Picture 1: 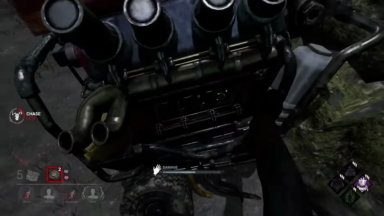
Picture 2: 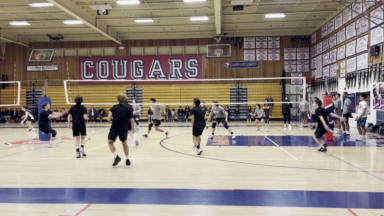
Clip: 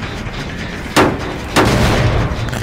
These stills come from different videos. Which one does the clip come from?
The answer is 1